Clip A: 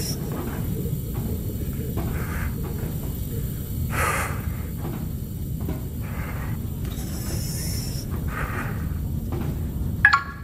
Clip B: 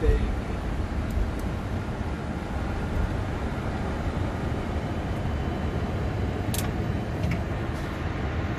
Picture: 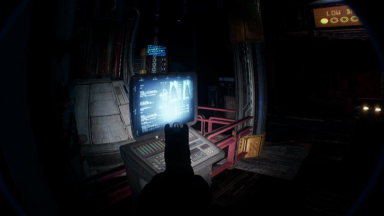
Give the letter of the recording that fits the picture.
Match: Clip A